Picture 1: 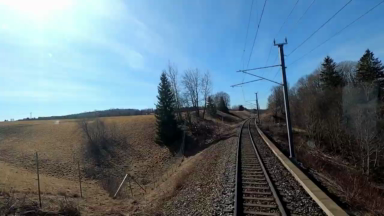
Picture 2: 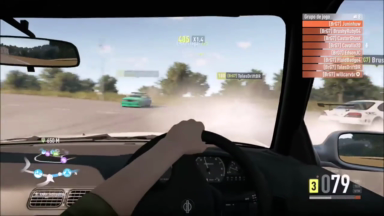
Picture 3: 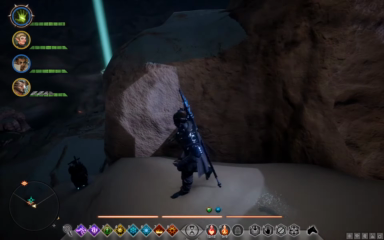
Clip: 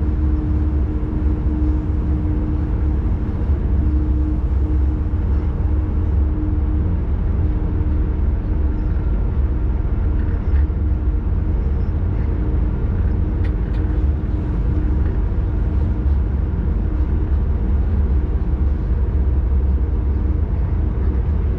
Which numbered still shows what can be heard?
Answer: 1